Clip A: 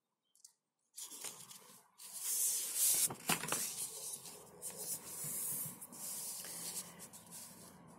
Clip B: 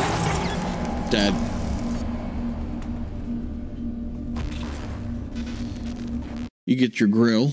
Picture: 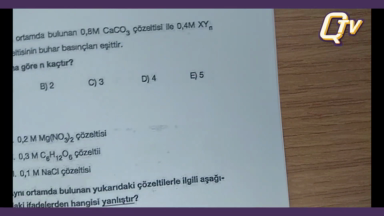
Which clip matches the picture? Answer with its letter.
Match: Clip A